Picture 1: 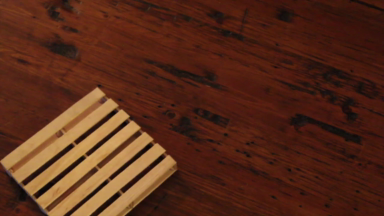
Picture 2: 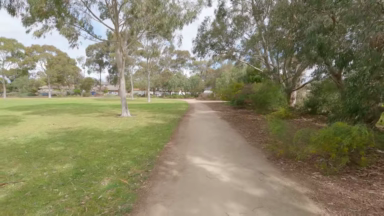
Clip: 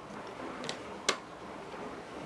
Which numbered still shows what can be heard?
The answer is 1